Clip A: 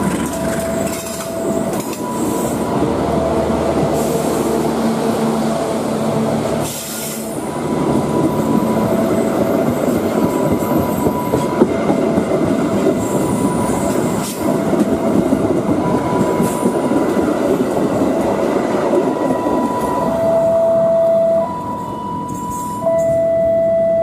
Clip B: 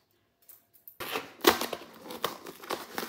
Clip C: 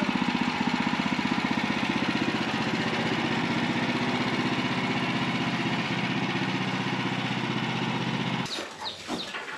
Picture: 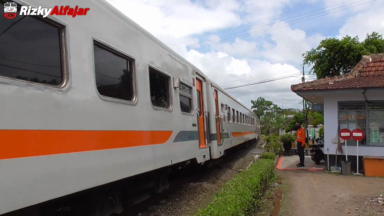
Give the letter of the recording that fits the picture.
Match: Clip A